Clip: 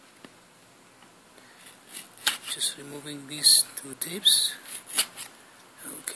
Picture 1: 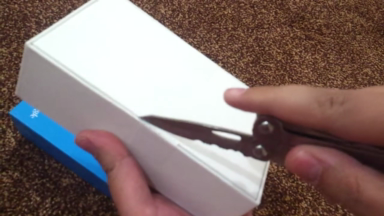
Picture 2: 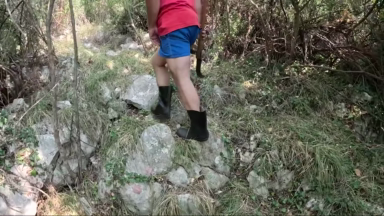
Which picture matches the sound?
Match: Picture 1